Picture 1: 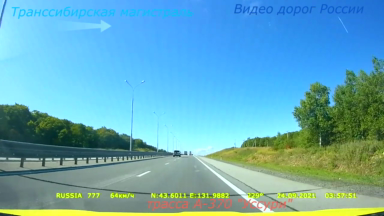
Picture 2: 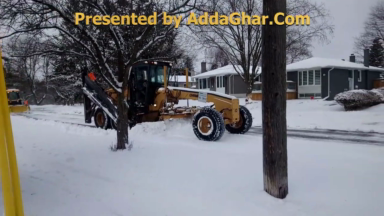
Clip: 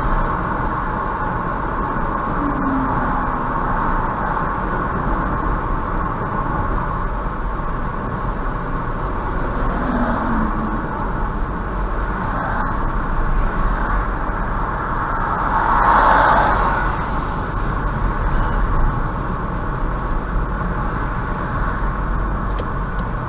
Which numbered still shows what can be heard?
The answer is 1